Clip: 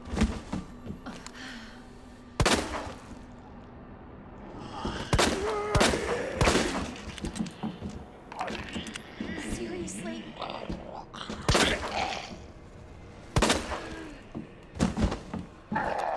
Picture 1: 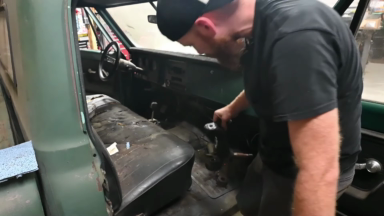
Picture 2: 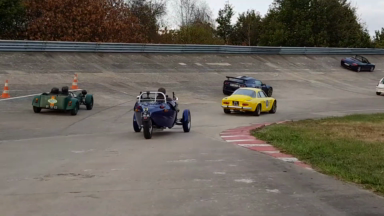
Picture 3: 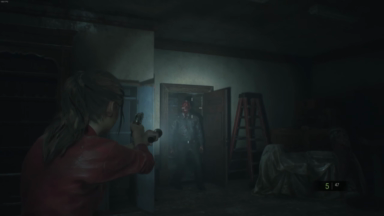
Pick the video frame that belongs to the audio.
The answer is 3